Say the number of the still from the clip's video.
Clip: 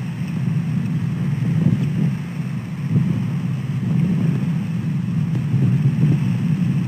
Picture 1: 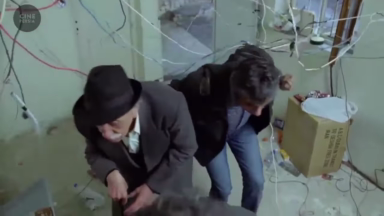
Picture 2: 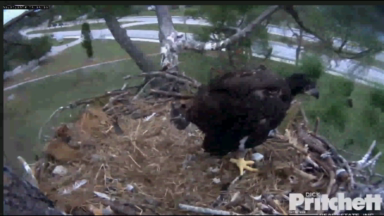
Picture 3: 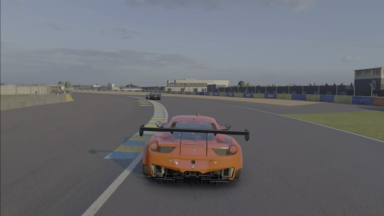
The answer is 2